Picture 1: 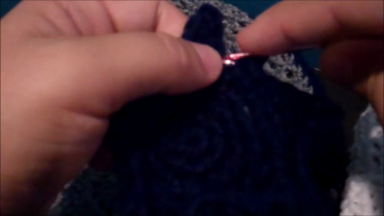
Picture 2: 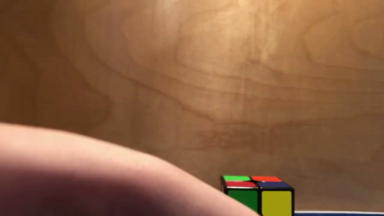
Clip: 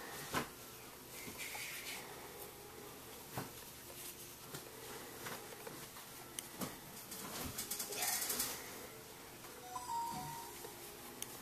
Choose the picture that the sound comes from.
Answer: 1